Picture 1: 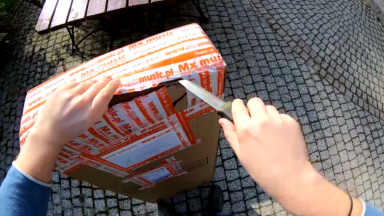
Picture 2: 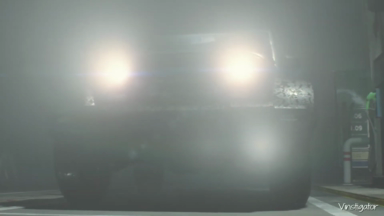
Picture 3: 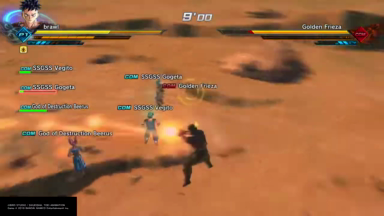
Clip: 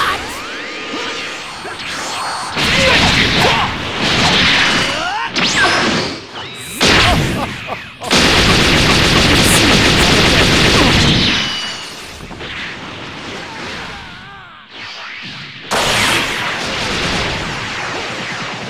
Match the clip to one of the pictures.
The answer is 3